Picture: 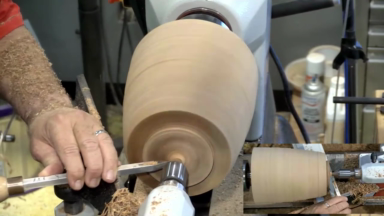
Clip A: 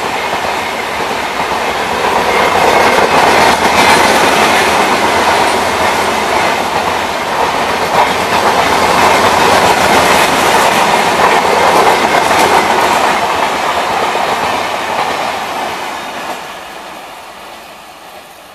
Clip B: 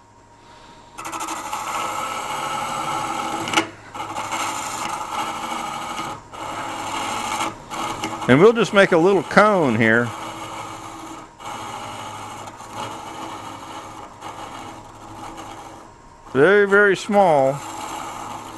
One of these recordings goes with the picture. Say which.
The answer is B